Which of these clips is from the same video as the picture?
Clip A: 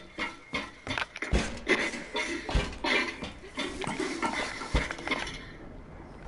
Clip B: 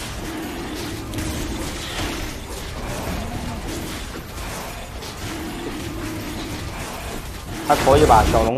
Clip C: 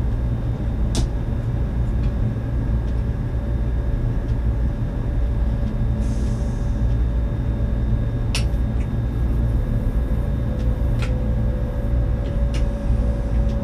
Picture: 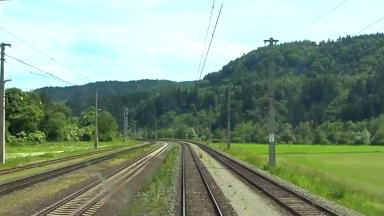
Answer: C